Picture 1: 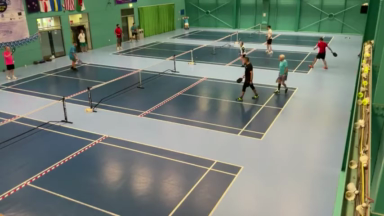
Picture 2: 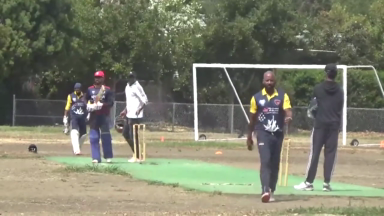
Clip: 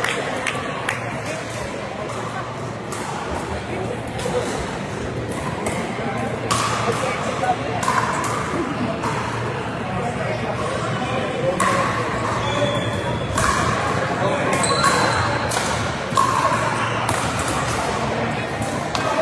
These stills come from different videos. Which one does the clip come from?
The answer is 1